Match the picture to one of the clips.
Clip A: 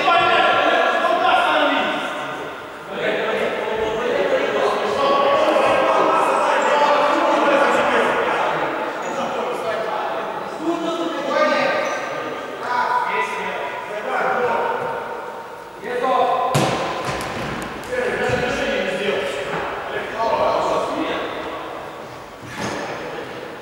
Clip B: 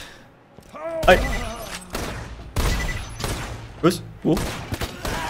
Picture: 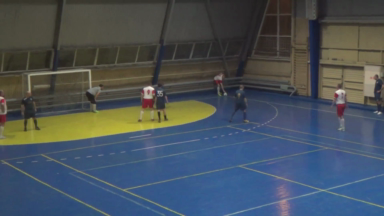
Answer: A